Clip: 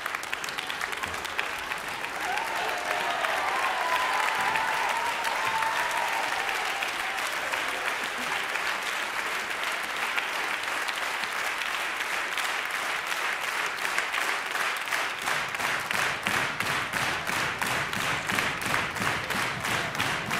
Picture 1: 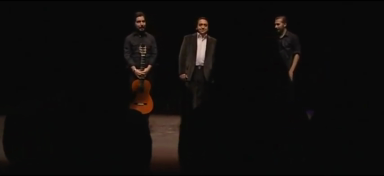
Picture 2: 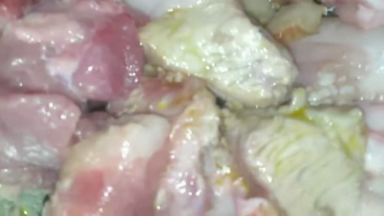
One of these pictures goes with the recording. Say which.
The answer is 1